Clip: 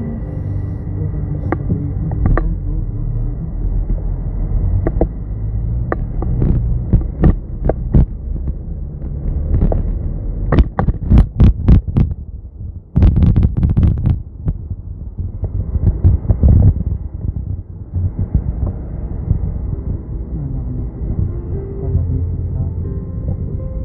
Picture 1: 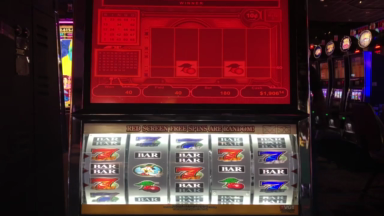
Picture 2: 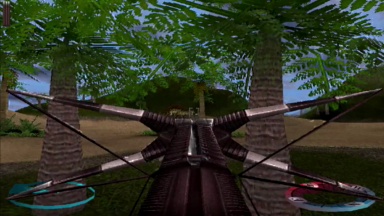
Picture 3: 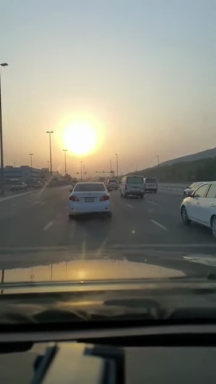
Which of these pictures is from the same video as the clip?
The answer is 3